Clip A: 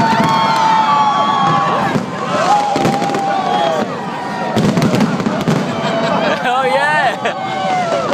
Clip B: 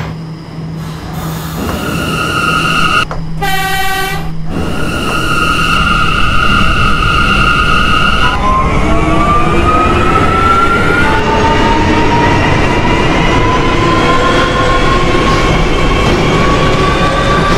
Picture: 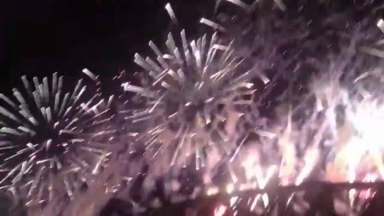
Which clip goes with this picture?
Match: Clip A